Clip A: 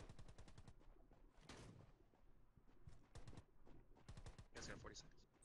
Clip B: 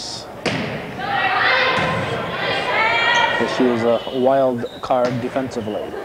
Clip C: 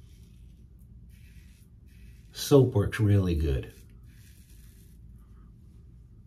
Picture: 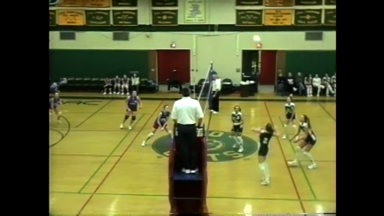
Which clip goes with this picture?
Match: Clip B